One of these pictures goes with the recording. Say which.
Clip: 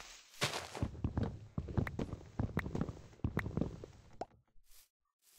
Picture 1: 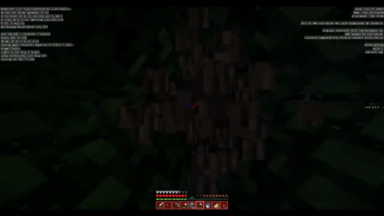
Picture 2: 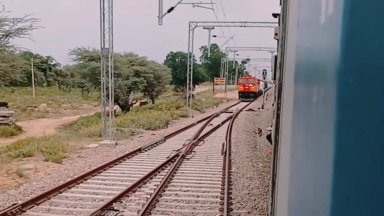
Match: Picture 1